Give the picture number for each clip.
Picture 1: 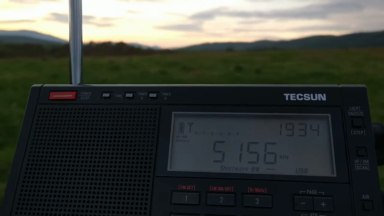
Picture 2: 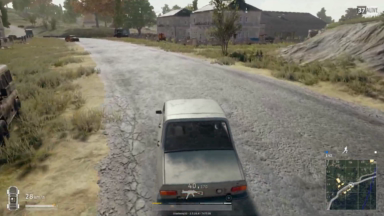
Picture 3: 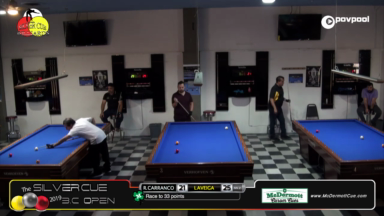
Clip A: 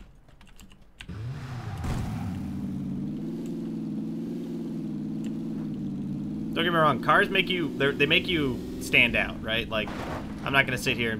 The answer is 2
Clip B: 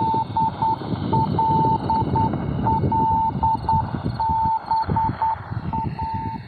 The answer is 1